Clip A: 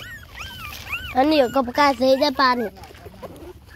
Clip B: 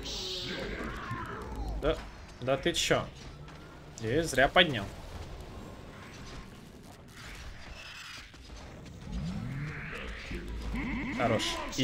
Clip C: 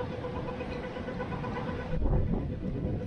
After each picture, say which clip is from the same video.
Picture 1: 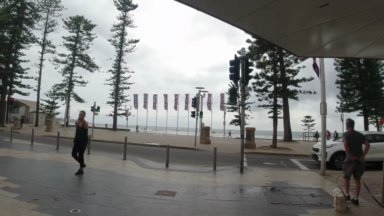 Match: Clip C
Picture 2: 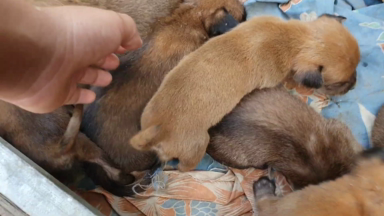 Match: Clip A